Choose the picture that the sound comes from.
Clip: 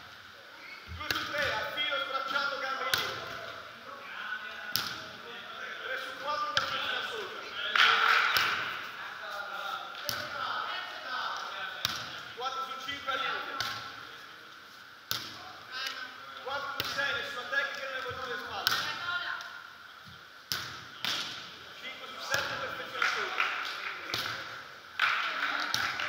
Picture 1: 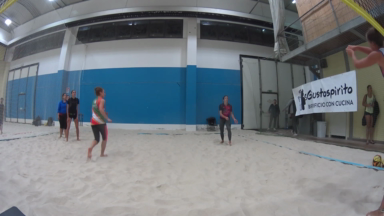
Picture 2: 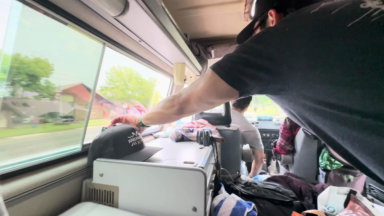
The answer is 1